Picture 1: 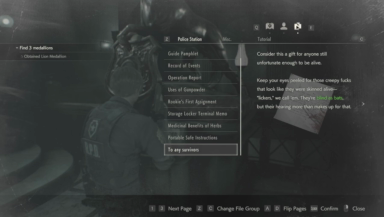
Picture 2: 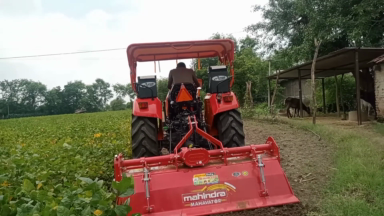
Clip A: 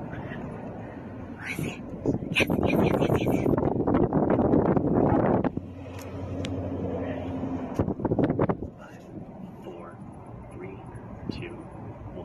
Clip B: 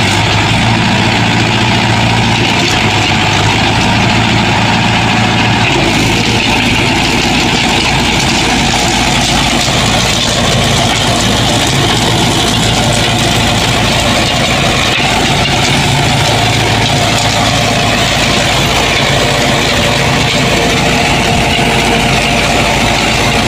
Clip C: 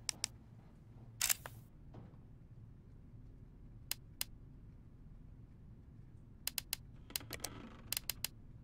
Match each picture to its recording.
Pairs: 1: C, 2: B